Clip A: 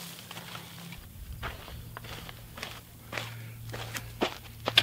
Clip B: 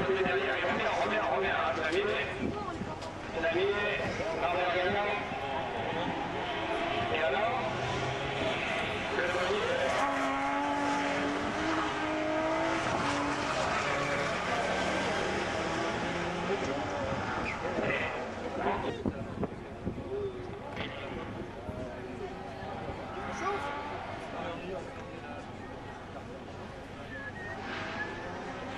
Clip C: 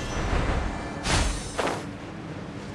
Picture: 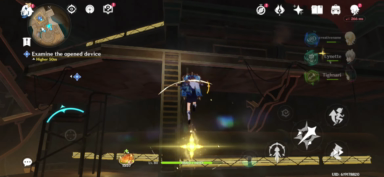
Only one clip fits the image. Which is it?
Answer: C